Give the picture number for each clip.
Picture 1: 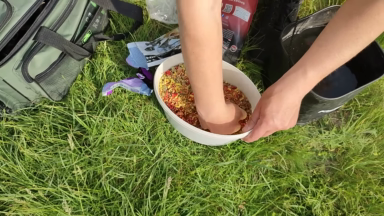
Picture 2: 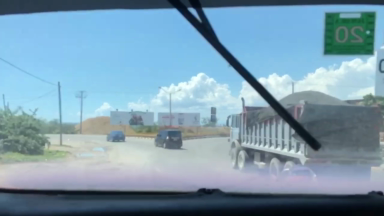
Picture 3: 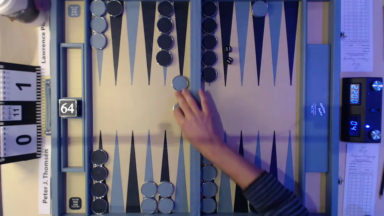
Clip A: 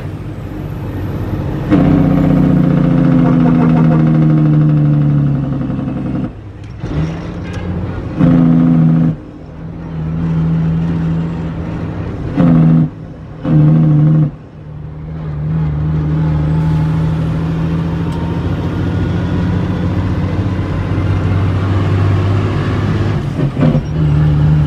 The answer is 2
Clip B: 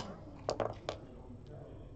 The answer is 3